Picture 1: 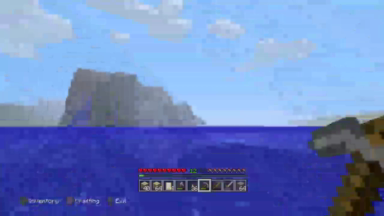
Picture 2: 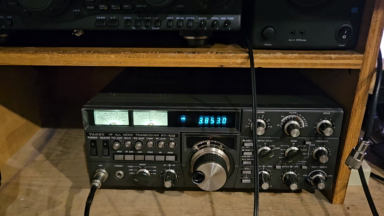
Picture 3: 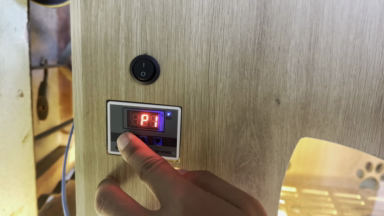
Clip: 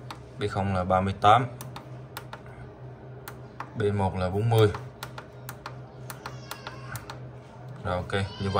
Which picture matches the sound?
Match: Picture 3